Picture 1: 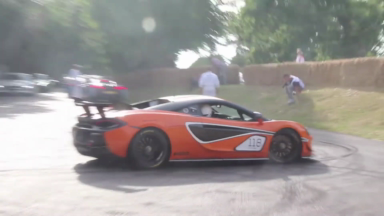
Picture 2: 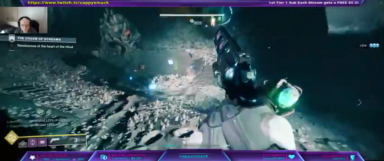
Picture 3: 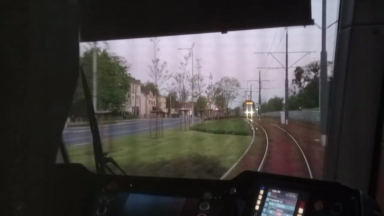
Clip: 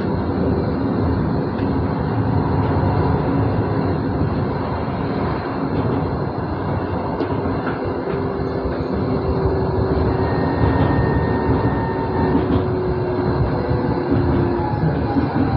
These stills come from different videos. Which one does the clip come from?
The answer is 3